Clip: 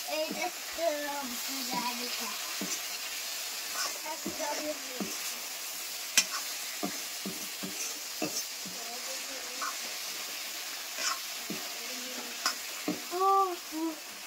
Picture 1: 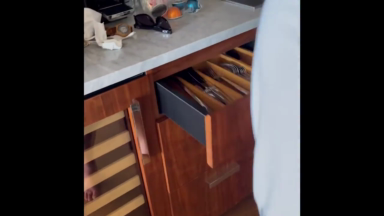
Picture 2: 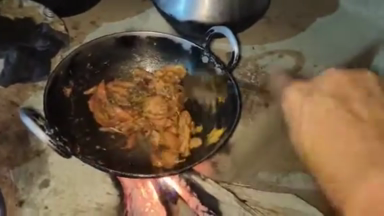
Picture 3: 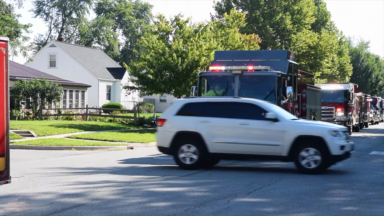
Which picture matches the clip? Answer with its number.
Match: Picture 2